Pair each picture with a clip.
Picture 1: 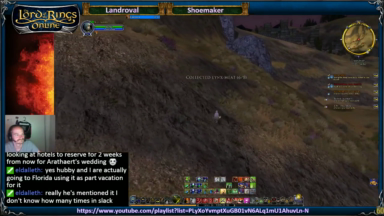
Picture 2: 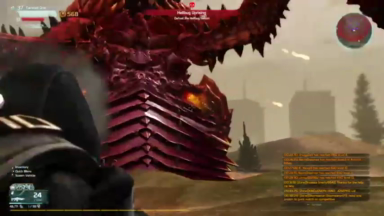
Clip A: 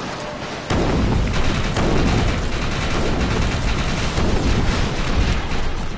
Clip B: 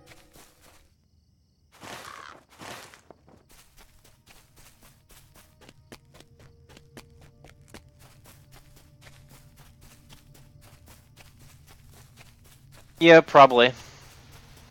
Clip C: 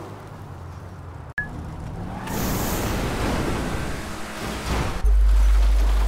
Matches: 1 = B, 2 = A